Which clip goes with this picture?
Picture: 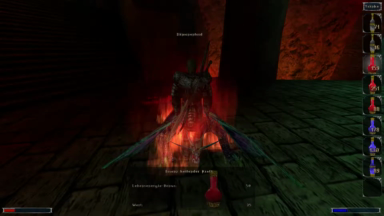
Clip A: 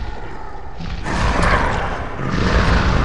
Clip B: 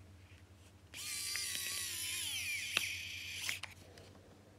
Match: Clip A